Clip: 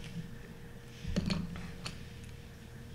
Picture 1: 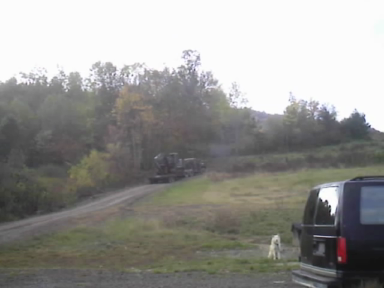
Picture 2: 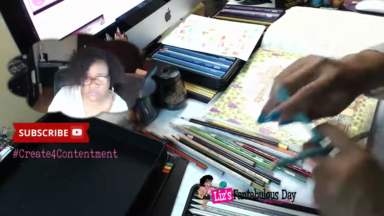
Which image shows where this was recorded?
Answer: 2